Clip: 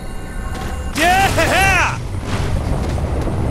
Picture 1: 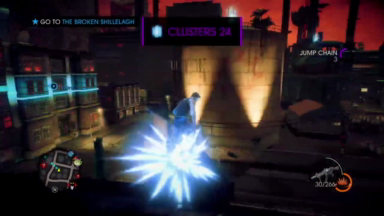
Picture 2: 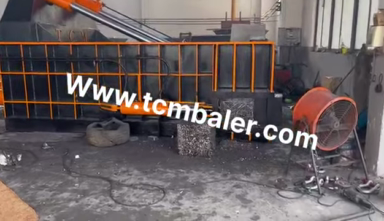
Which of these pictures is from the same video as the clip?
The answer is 1